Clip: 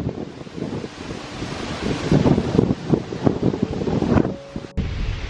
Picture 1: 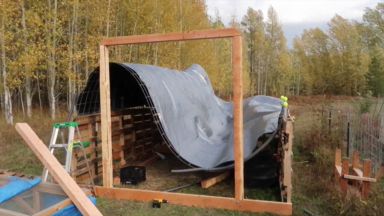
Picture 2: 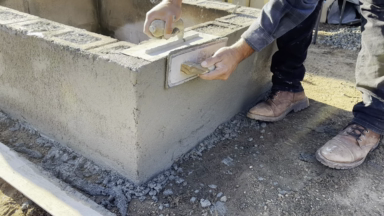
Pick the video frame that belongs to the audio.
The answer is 1